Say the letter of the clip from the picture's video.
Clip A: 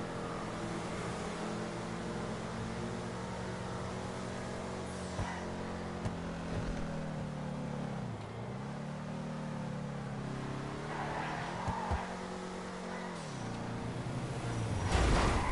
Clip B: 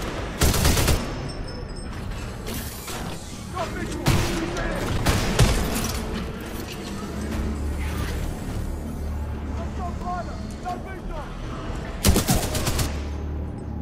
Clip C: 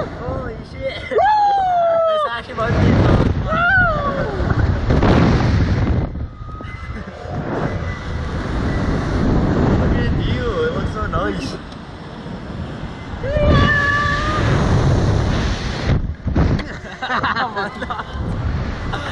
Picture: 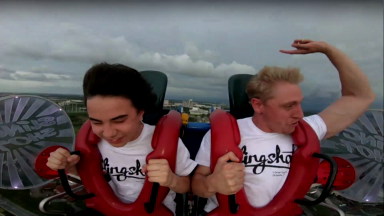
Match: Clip C